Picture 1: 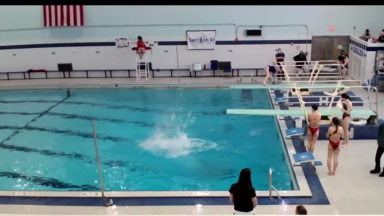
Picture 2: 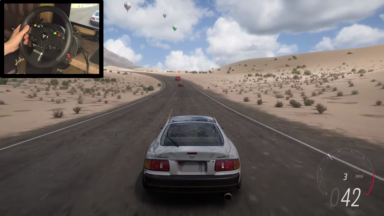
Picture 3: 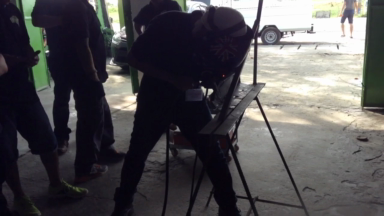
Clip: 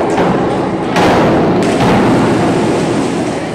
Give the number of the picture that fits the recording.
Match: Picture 1